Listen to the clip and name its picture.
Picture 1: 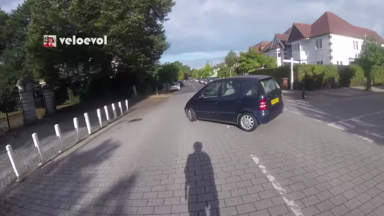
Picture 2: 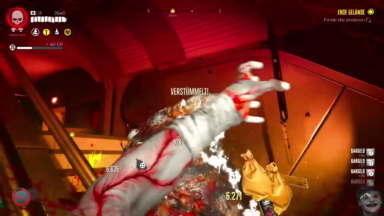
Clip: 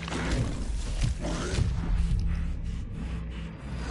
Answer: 2